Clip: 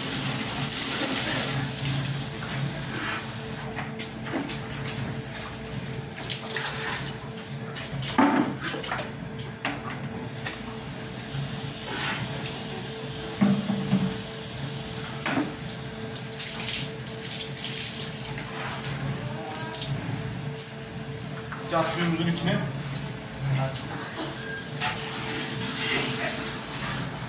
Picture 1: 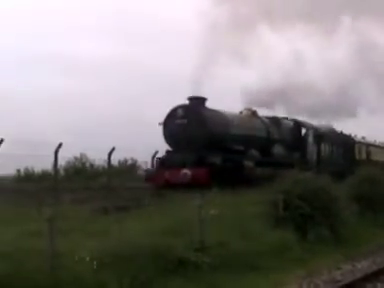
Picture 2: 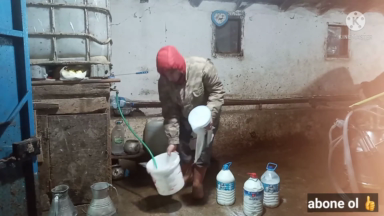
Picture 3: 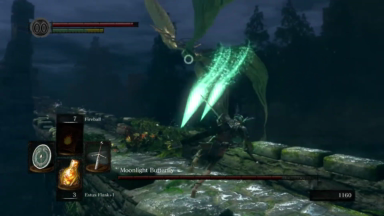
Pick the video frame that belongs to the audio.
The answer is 2